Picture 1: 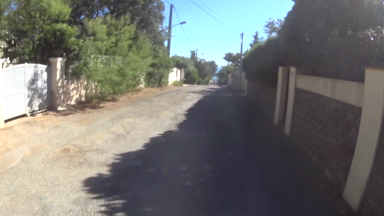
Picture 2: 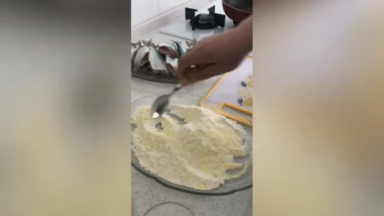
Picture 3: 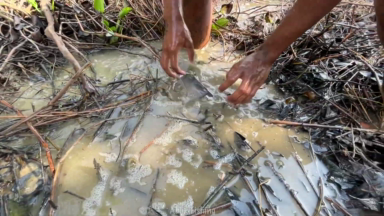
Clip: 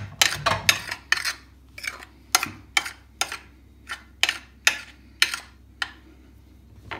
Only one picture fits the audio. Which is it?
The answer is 2